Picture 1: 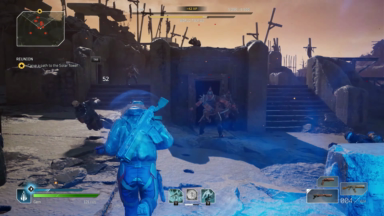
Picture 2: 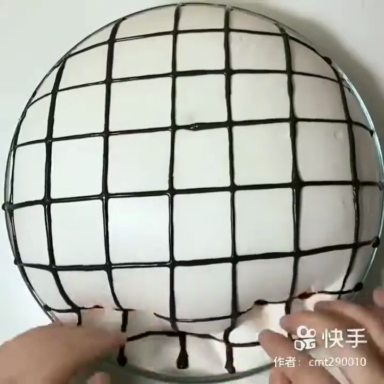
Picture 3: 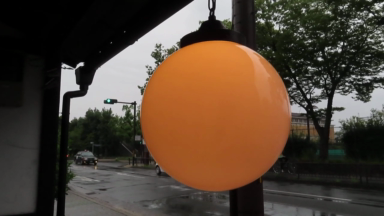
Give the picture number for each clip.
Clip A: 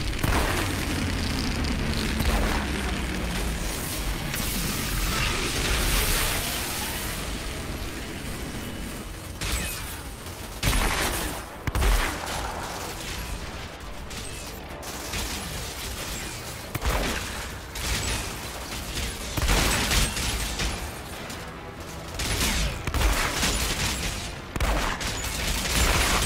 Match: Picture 1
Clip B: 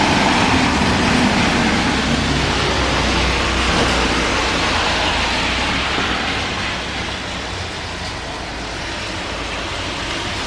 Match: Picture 3